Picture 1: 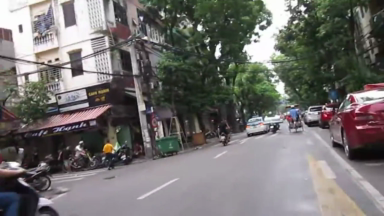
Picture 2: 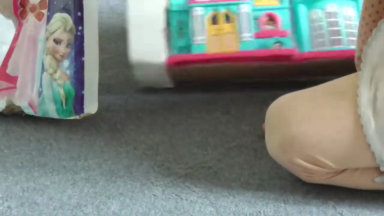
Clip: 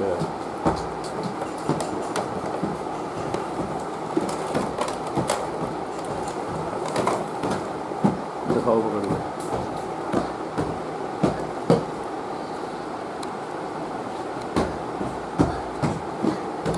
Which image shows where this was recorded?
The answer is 2